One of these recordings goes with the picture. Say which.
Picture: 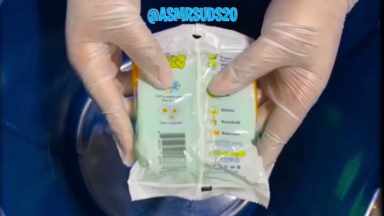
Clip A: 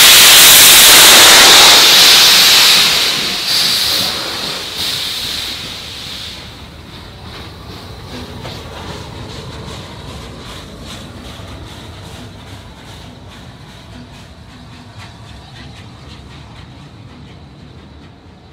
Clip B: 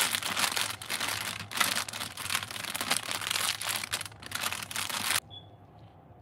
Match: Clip B